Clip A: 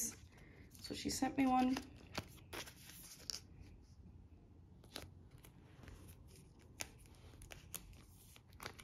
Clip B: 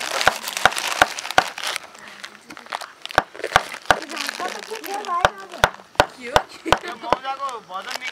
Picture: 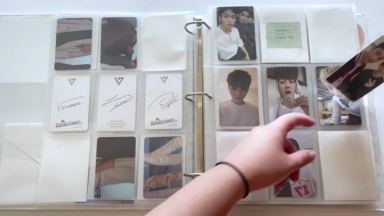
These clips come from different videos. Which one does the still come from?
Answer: A